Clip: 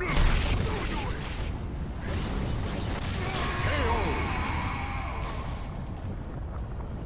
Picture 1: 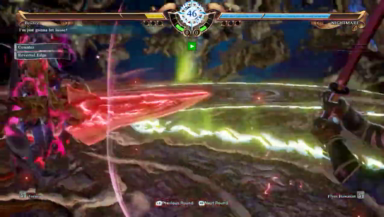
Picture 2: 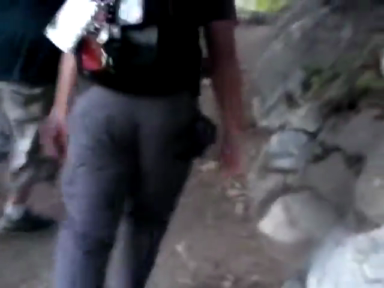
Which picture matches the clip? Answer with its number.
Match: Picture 1